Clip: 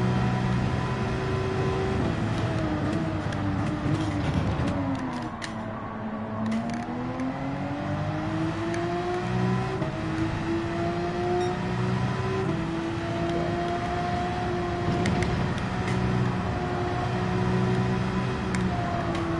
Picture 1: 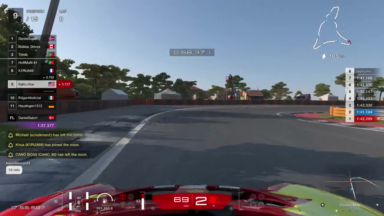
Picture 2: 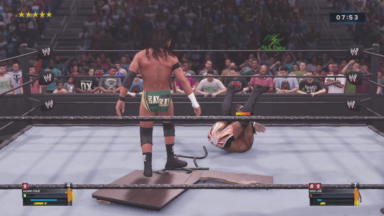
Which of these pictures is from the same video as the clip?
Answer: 1